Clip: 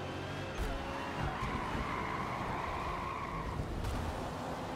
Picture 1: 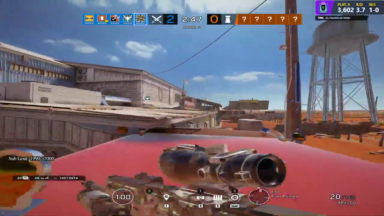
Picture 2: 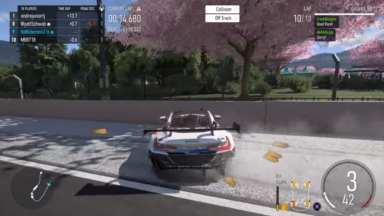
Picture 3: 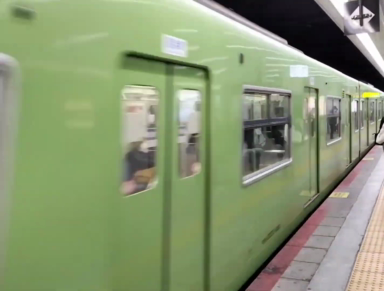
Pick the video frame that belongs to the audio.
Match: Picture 2